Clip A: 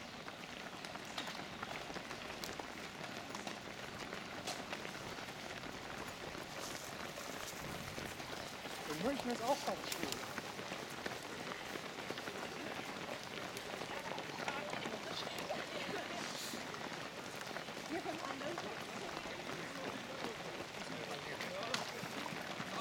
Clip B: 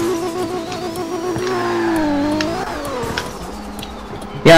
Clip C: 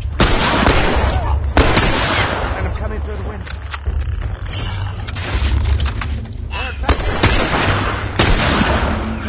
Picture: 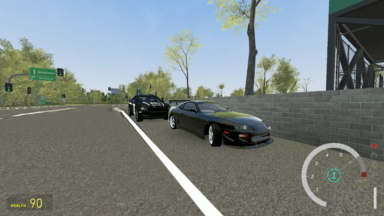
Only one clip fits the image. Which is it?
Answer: B